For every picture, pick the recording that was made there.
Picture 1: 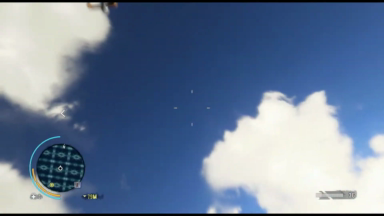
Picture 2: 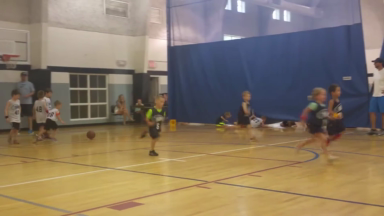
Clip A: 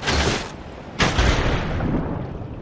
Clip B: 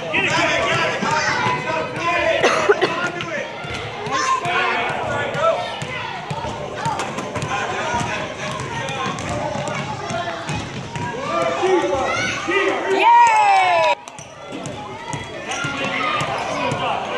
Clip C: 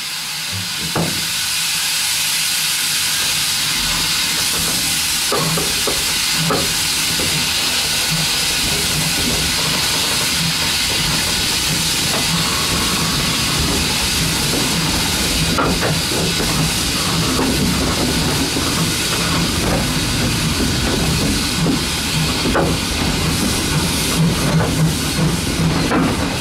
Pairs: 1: A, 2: B